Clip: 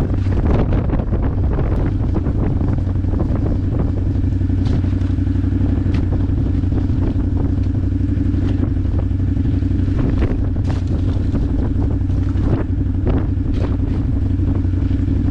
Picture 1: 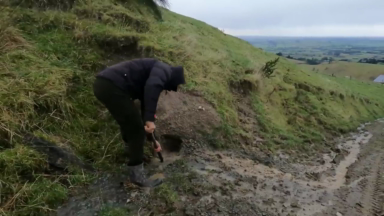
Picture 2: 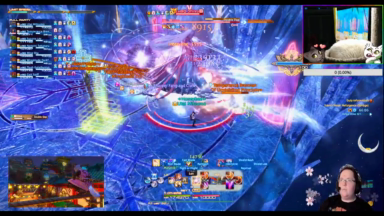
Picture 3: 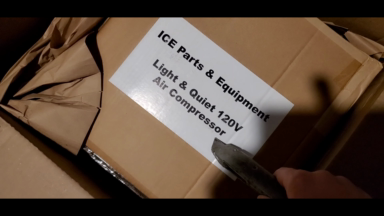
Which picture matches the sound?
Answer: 1